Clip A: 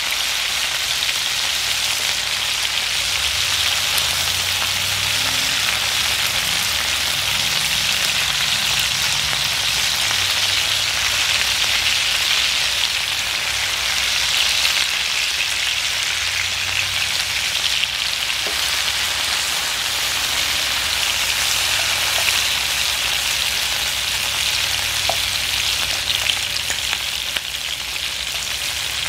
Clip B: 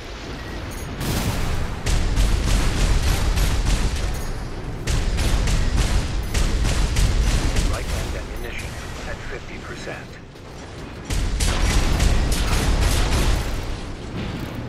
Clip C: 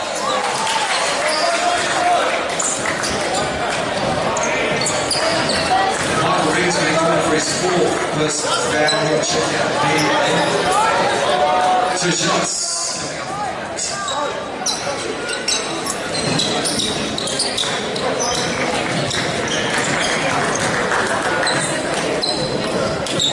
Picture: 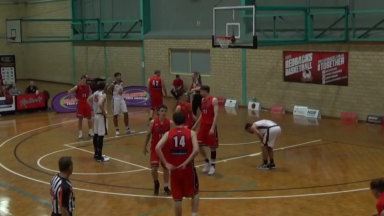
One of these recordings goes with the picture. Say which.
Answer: C